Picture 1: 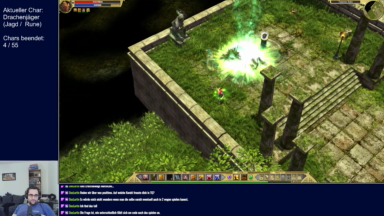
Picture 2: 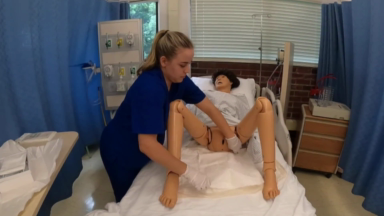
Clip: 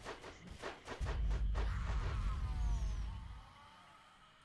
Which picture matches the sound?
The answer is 1